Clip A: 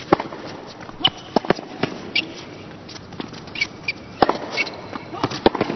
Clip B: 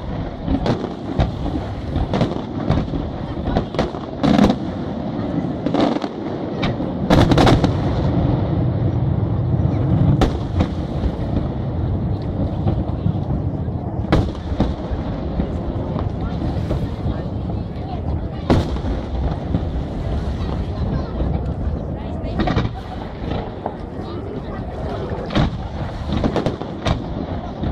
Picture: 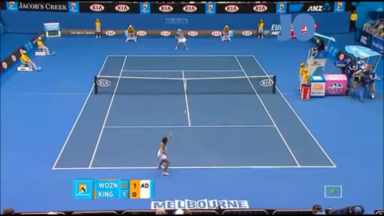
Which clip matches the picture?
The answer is A